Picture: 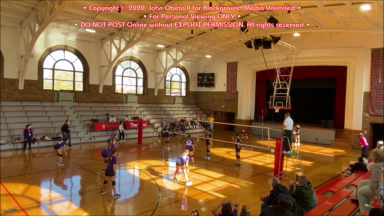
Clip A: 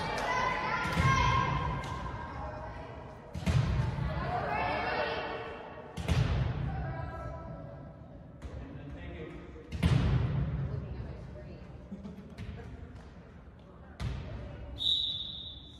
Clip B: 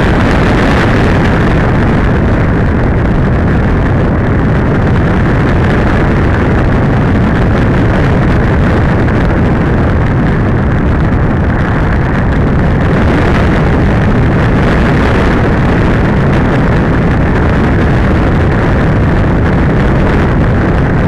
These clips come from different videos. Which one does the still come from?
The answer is A